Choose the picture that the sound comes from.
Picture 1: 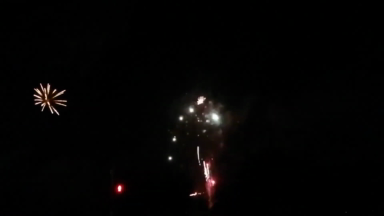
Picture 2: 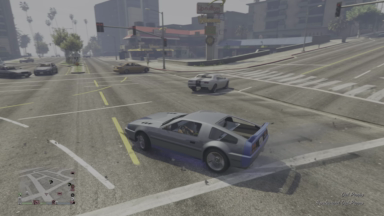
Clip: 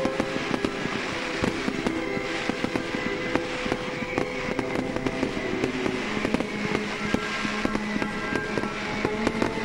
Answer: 1